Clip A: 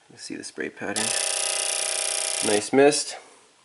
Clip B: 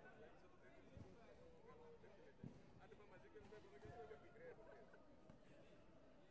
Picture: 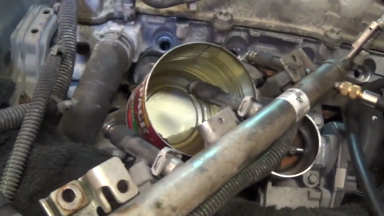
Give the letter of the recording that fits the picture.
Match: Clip A